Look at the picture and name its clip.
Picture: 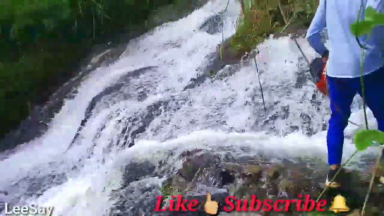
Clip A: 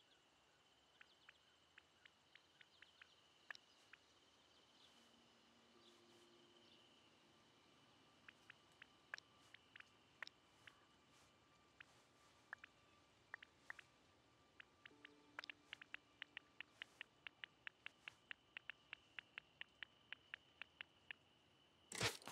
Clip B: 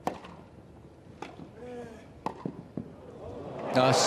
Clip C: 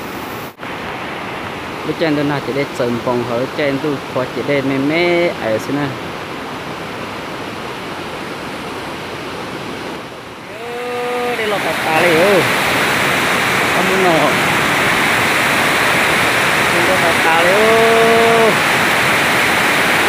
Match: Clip C